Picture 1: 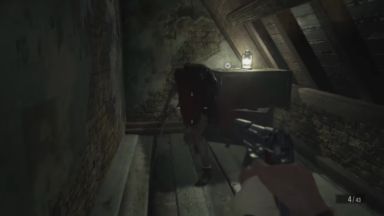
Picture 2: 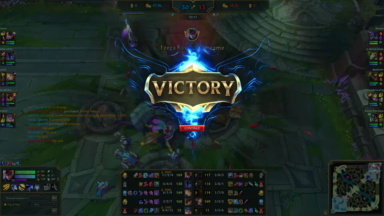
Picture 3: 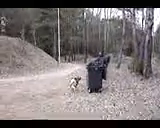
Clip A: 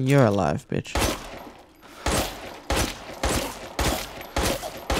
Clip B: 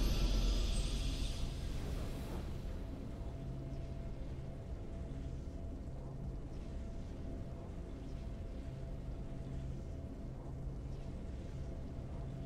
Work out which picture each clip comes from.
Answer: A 1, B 2